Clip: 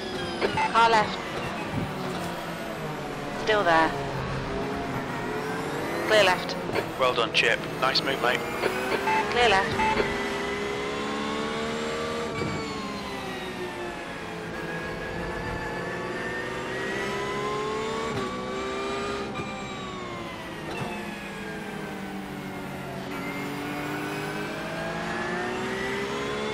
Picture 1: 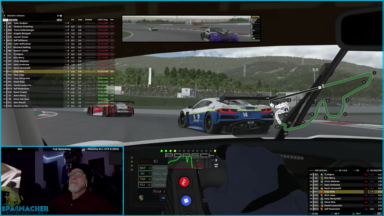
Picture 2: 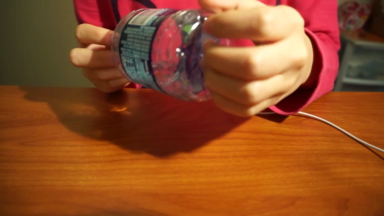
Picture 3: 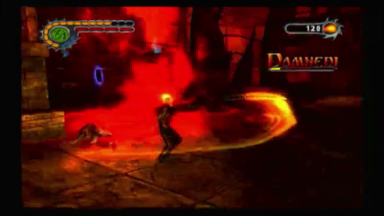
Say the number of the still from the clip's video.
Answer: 1